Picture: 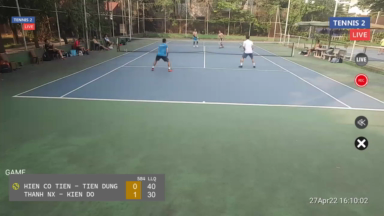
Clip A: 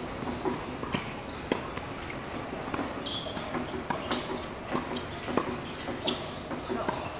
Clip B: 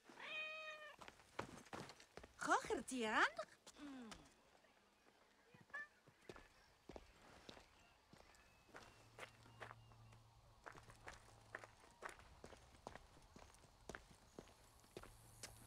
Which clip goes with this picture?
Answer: A